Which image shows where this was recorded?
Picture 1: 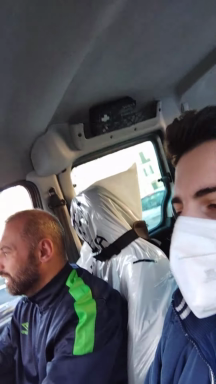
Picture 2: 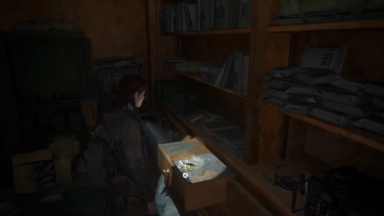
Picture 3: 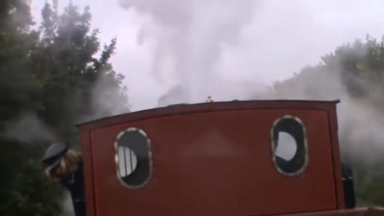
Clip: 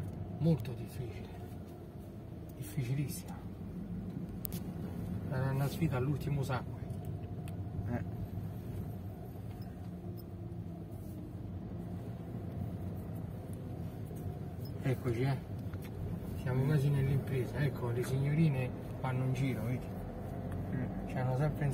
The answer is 1